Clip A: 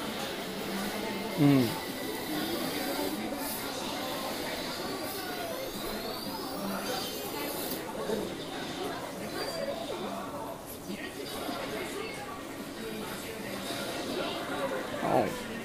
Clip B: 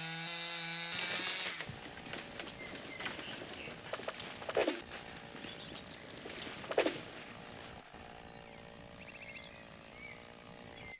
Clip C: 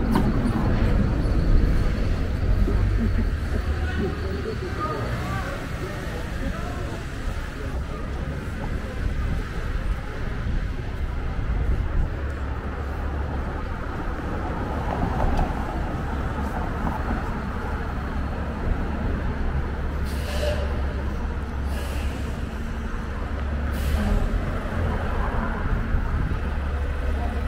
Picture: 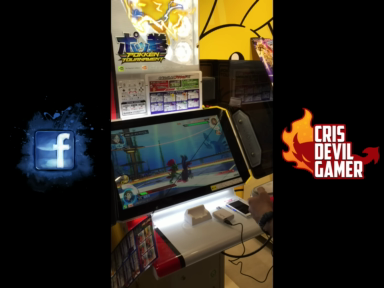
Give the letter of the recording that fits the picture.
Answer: A